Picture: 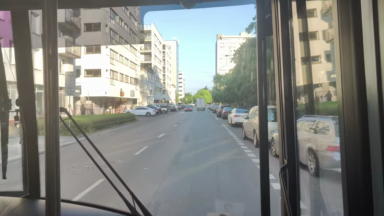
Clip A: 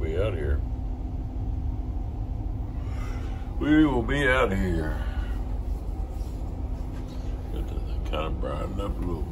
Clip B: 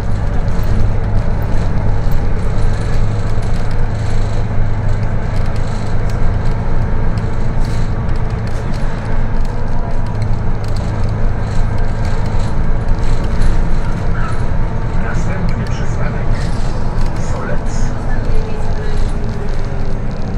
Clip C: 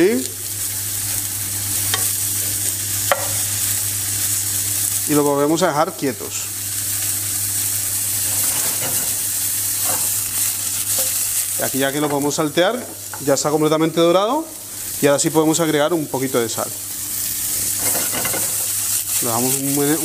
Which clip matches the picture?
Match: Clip B